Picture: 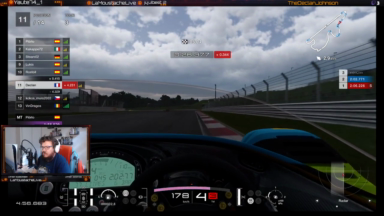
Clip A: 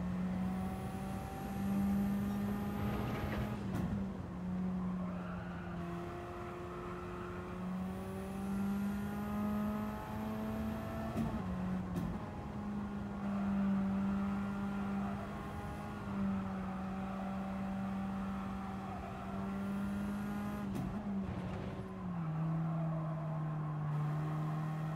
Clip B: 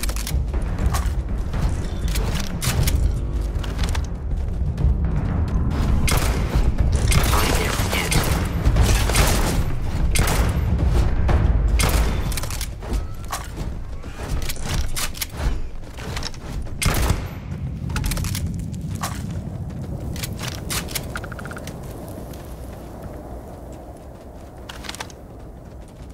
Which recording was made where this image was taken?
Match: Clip A